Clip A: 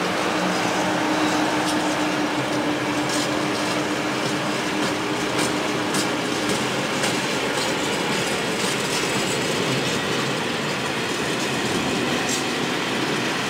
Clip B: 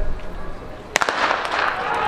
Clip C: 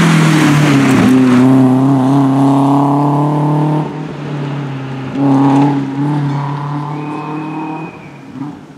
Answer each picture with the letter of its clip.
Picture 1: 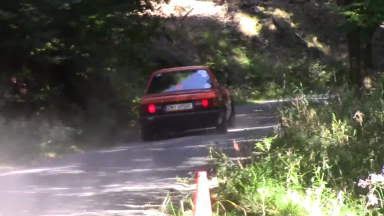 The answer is C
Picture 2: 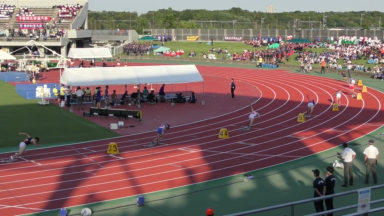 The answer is B